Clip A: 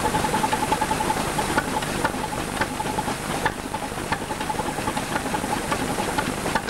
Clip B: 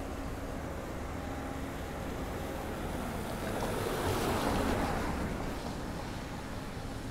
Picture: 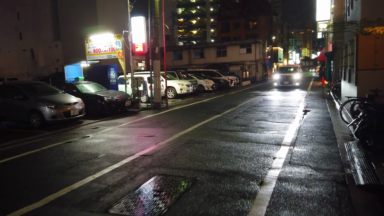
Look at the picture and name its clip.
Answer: B